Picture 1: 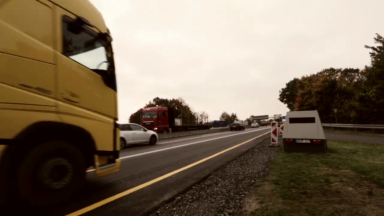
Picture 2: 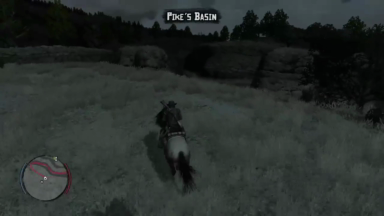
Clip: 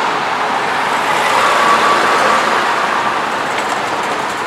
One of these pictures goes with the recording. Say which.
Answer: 1